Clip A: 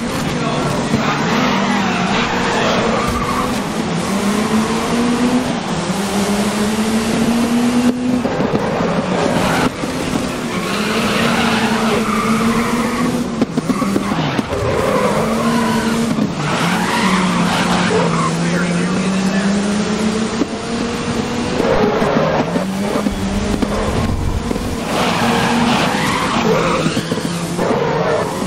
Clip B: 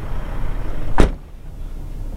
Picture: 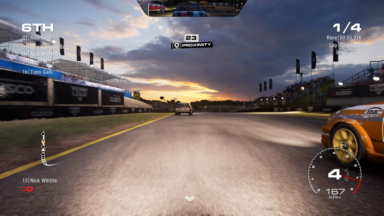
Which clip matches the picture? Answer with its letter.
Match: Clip A